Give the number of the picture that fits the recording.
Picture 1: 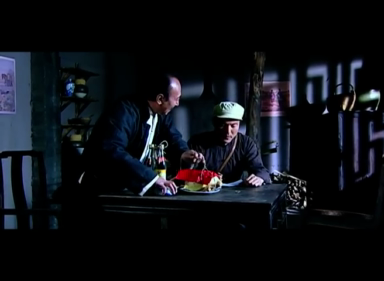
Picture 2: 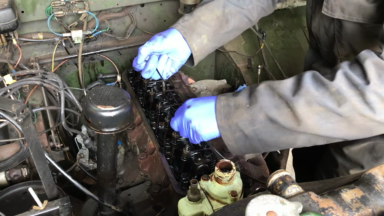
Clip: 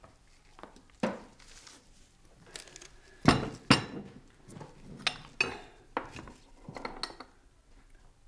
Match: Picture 1